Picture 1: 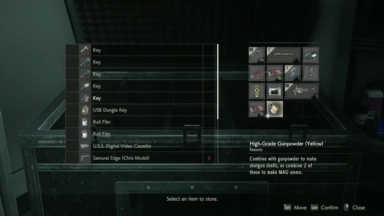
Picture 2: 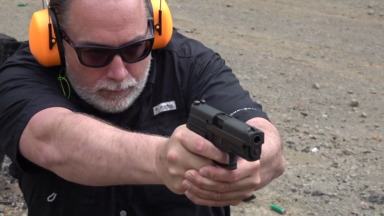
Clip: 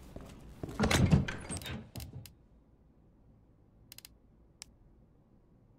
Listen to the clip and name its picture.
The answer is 1